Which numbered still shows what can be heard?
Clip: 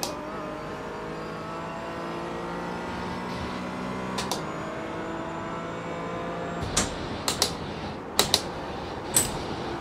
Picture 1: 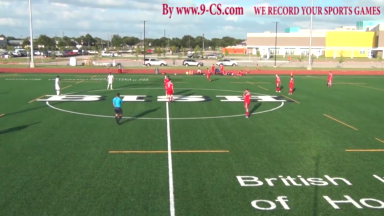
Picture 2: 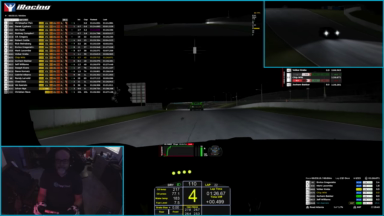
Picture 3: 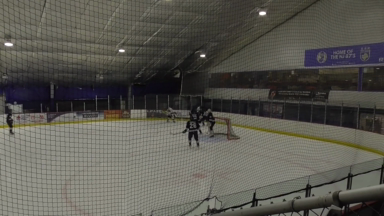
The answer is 2